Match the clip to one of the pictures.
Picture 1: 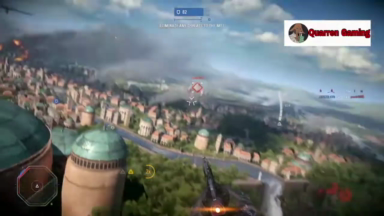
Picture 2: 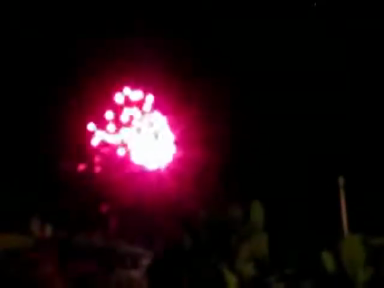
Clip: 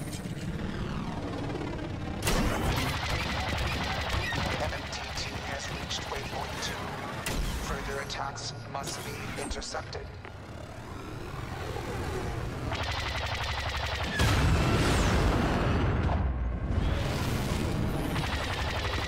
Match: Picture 1